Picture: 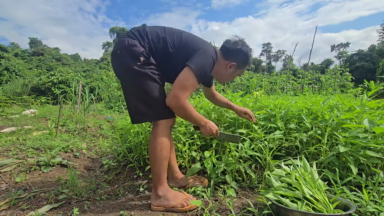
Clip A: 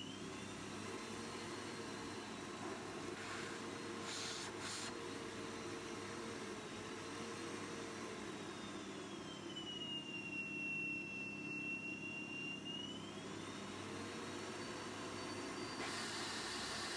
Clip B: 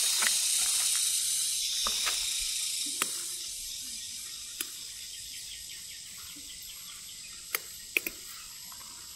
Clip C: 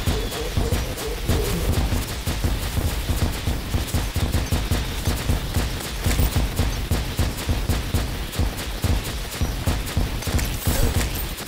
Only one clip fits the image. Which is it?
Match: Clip B